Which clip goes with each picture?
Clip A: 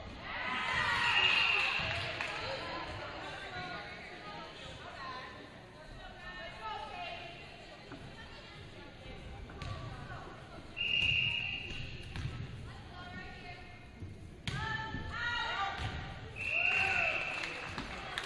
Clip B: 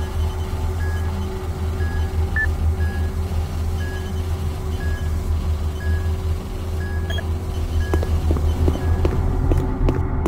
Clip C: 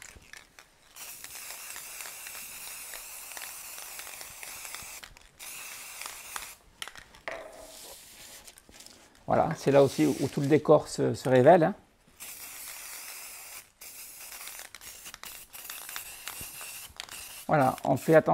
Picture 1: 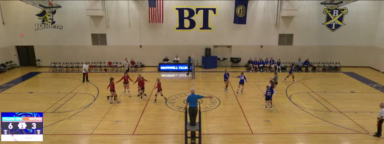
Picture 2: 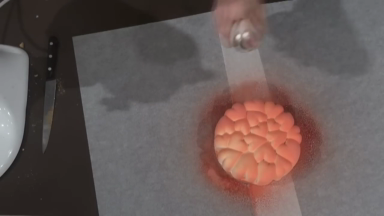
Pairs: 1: A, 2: C